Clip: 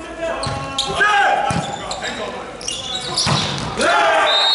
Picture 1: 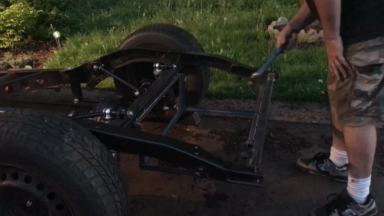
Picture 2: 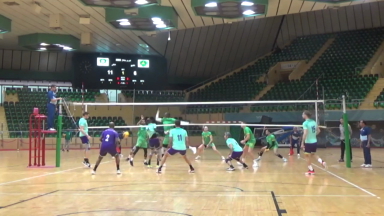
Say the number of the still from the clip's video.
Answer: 2